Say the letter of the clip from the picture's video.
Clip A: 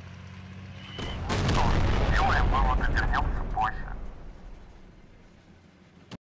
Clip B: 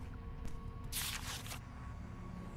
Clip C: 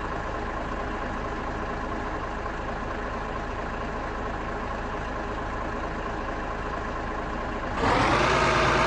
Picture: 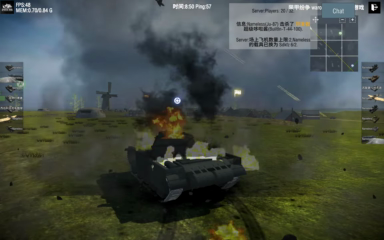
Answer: A